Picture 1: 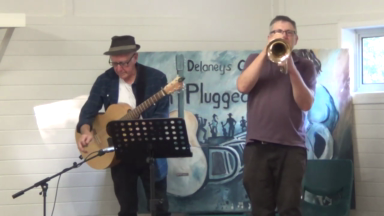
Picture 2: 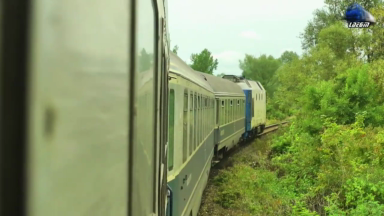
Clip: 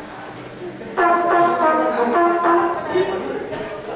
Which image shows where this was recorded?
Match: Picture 1